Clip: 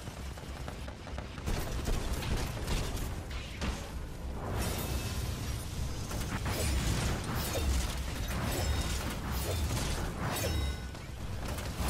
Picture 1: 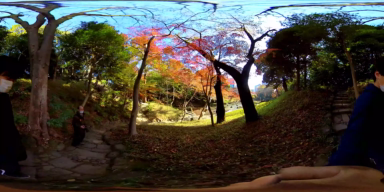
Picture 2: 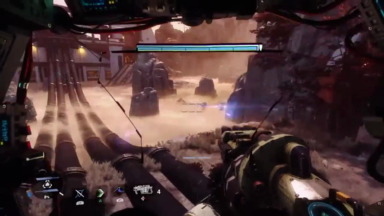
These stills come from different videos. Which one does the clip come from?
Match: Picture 2